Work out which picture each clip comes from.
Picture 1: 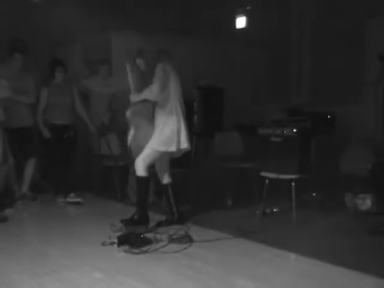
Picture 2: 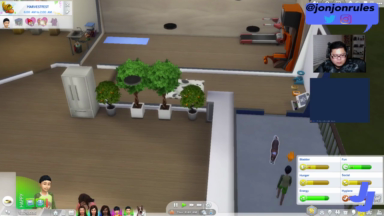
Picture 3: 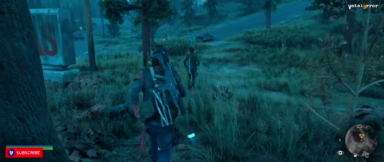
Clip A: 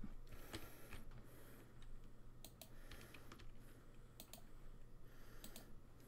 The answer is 2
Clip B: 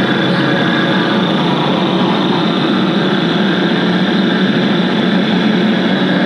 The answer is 1